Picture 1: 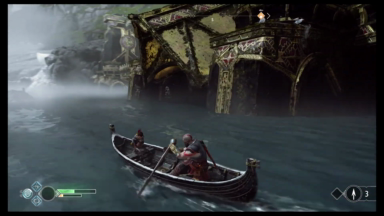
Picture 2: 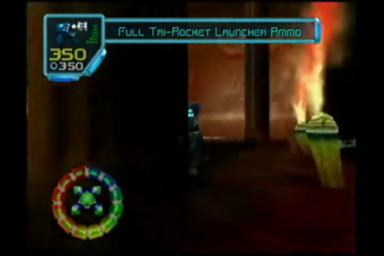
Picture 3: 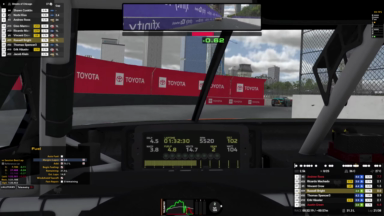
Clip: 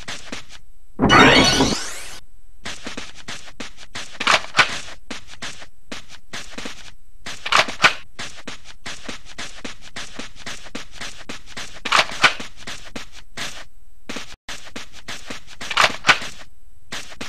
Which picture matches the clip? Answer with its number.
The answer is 2